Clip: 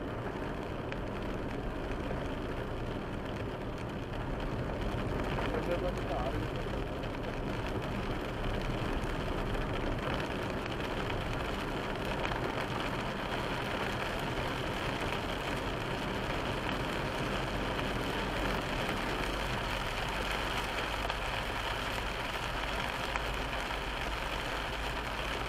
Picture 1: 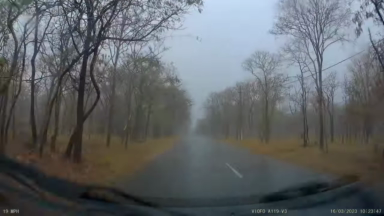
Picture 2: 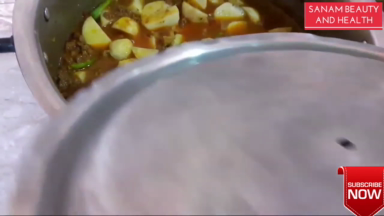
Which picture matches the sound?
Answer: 1